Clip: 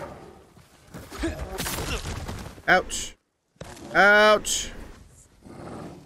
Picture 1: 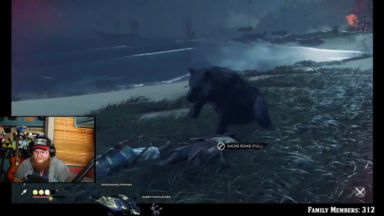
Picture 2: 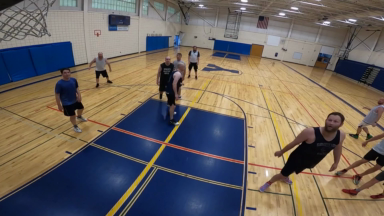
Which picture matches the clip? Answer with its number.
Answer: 1